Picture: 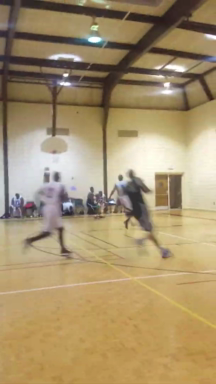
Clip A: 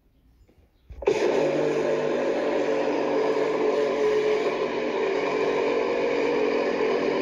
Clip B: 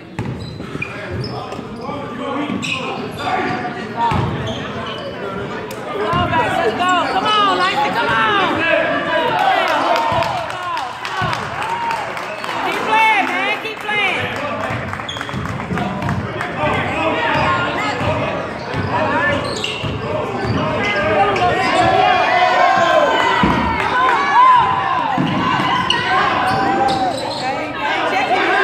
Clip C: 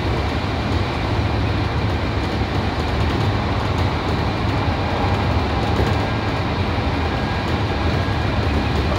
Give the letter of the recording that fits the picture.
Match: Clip B